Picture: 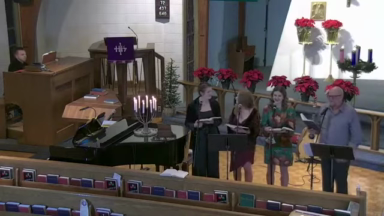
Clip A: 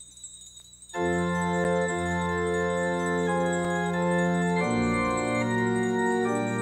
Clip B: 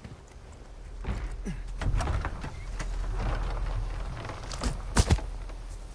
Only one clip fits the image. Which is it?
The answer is A